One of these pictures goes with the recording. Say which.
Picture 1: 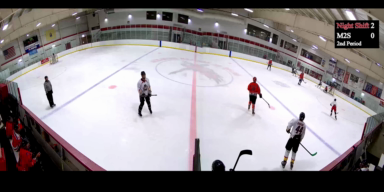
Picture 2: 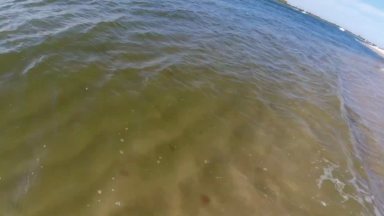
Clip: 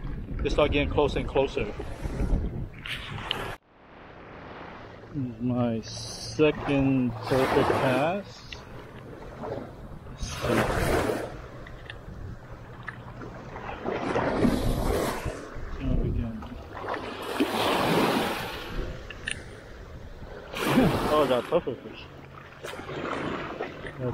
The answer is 2